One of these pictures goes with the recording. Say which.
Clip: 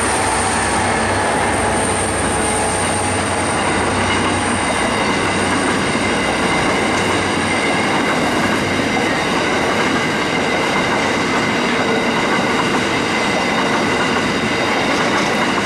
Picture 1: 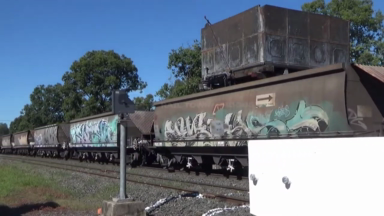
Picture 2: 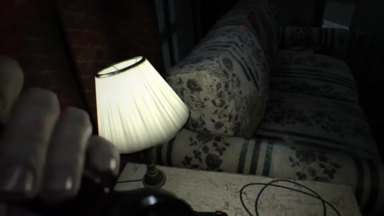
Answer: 1